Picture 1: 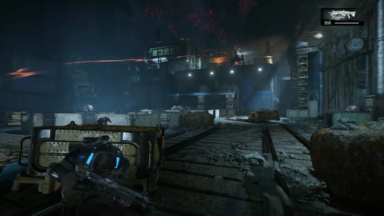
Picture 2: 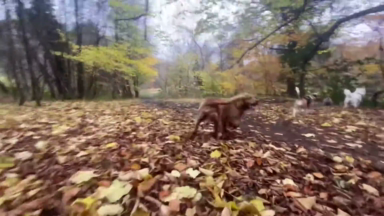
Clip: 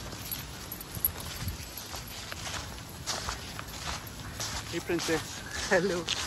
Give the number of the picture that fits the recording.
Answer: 2